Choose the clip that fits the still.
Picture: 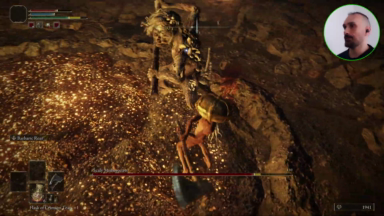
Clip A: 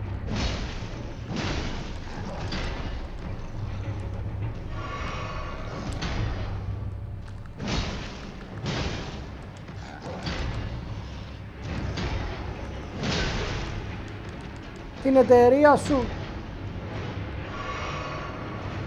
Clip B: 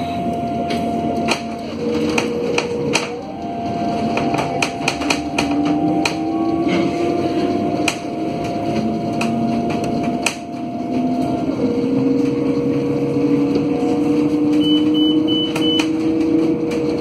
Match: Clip A